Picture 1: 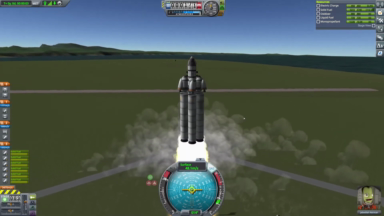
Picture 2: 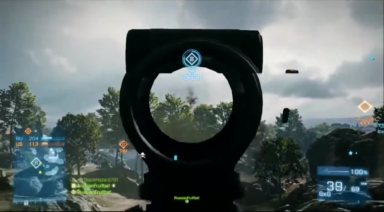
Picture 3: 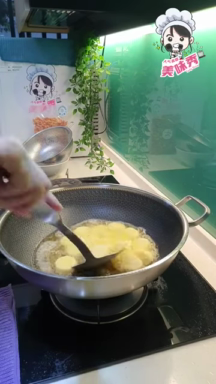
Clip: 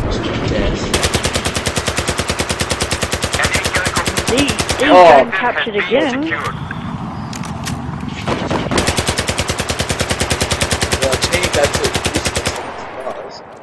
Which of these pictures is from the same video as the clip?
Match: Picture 2